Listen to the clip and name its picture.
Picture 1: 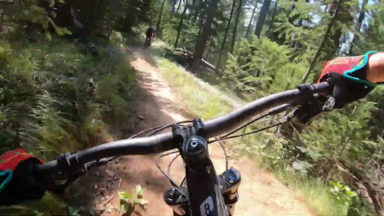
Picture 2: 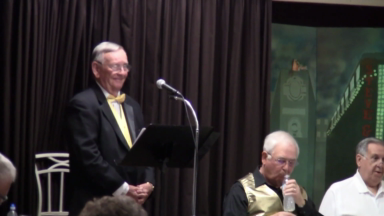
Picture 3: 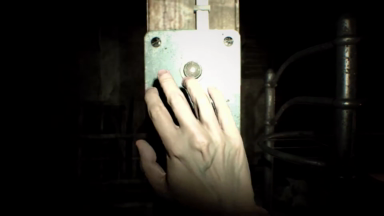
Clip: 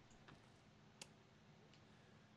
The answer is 3